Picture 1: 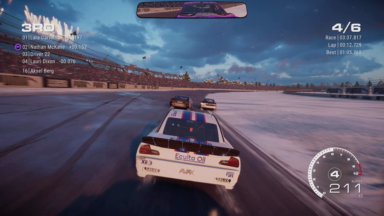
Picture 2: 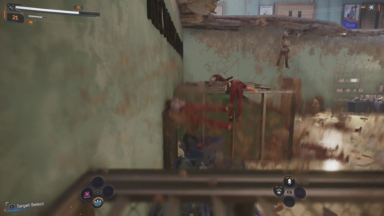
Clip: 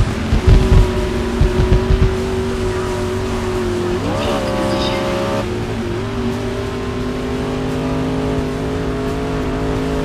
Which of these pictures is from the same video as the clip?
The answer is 1